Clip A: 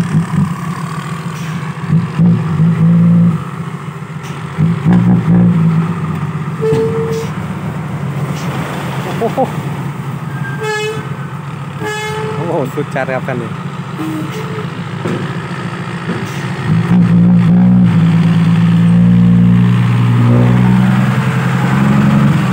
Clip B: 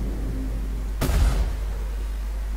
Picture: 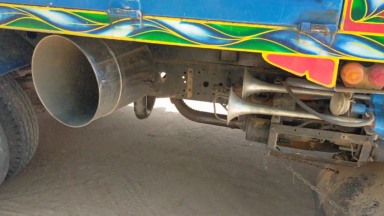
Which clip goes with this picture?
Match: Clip A